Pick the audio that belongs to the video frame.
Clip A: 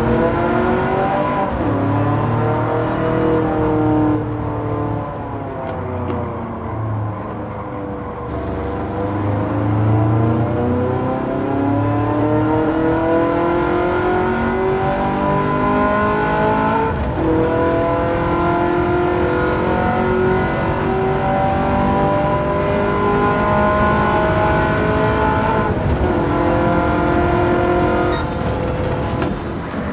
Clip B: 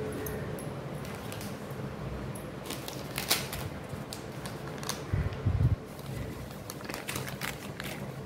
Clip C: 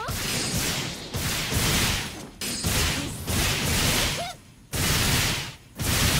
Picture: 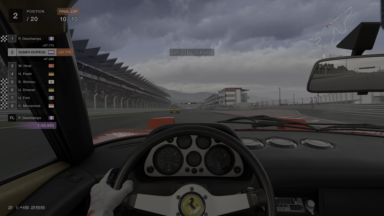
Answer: A